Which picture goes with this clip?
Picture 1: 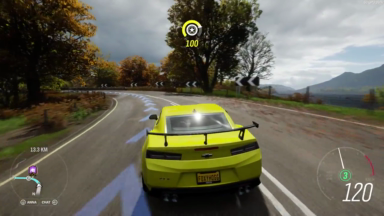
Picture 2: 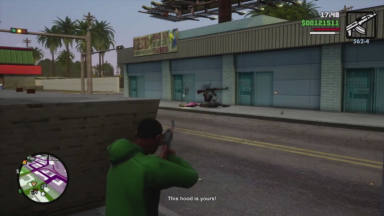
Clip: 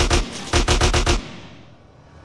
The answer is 2